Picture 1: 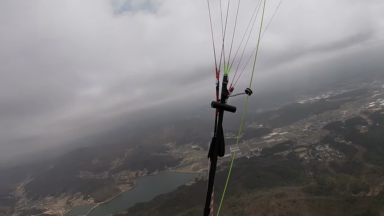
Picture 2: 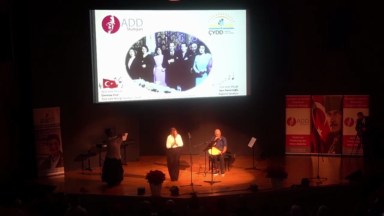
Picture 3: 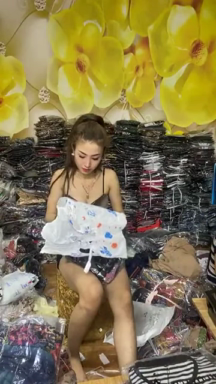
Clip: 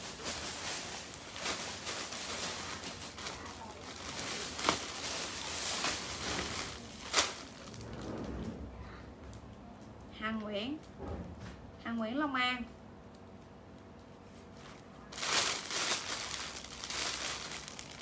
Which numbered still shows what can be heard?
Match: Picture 3